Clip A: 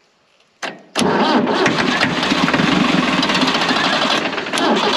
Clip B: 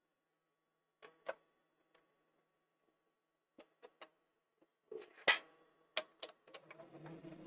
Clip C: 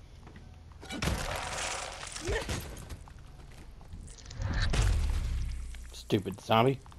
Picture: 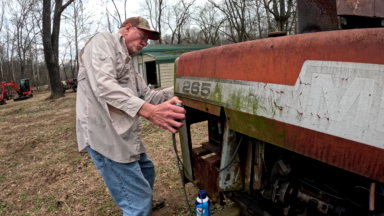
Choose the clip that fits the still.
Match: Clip A